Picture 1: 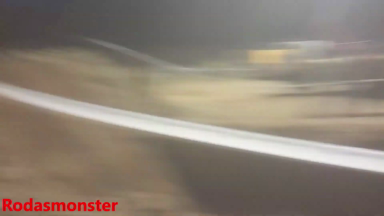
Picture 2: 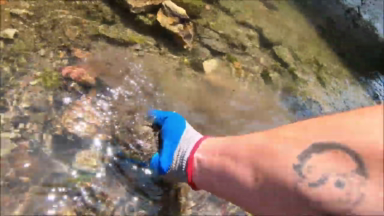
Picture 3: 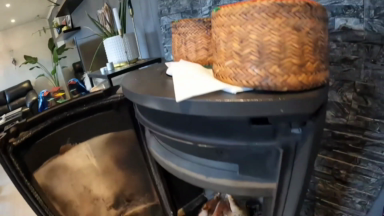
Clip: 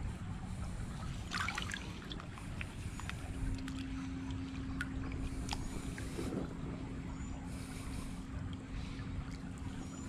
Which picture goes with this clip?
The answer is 2